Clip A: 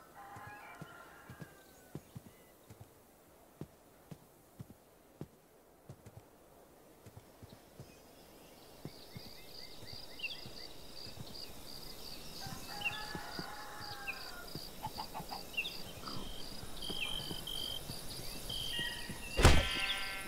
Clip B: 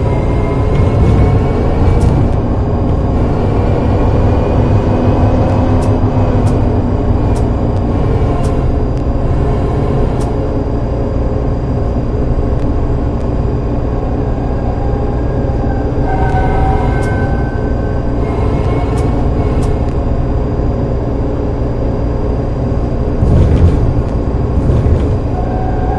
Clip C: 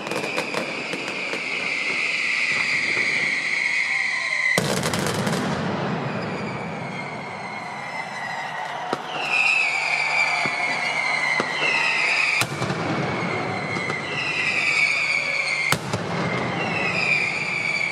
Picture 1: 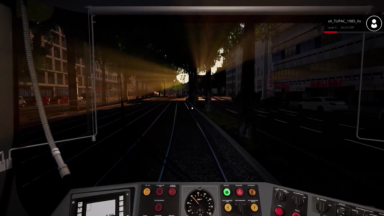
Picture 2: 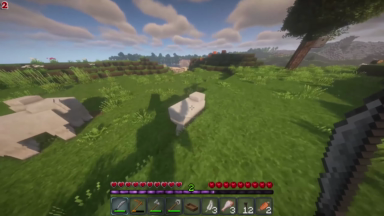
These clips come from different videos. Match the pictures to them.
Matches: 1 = B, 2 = A